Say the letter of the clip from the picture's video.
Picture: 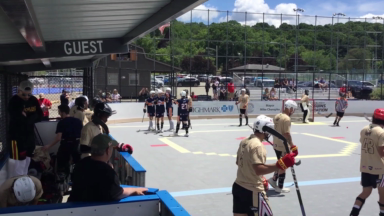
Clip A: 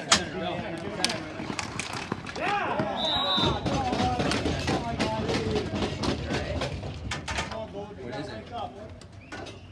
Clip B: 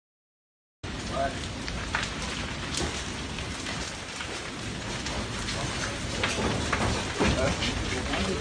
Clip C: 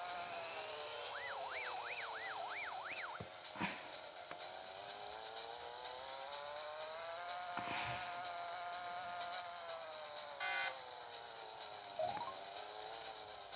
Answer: A